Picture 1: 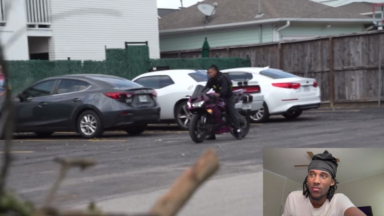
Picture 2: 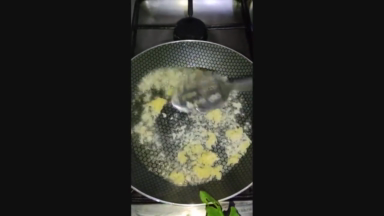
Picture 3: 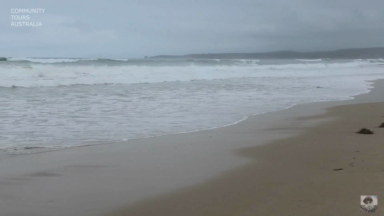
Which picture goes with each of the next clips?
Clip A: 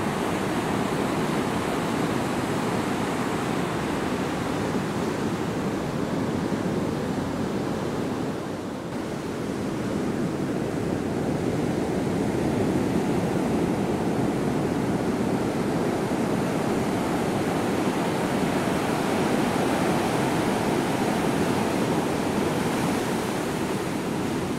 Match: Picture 3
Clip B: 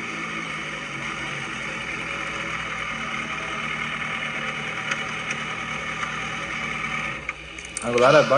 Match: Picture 1